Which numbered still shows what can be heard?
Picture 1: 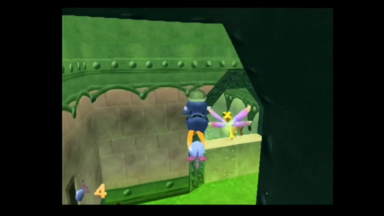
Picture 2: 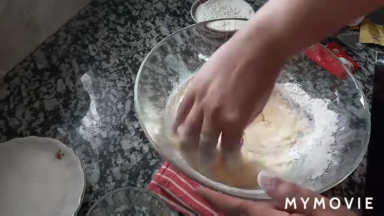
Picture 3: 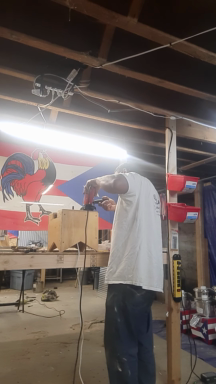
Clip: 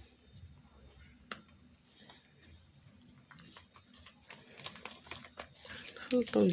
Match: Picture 2